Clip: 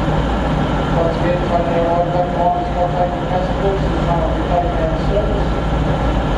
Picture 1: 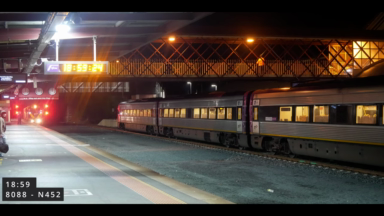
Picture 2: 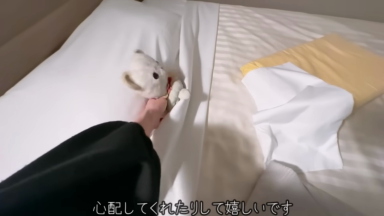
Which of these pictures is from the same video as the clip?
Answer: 1